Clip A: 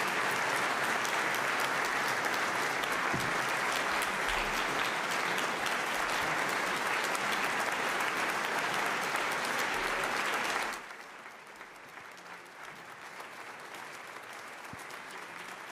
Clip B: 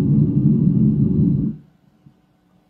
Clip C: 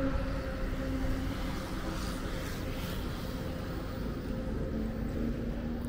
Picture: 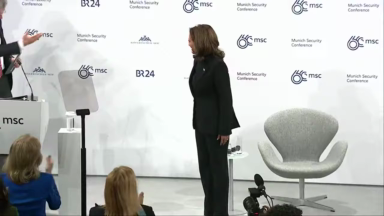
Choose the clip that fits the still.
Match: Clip A